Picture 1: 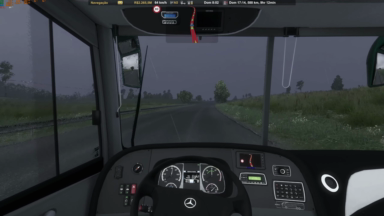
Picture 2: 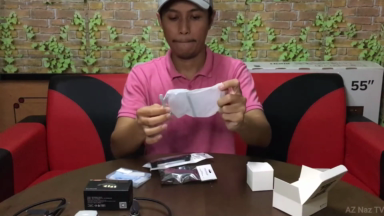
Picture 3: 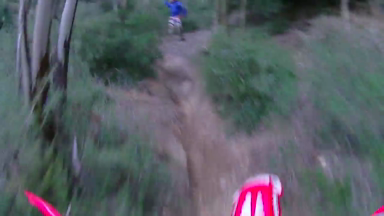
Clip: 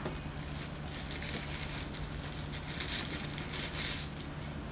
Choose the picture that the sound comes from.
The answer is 2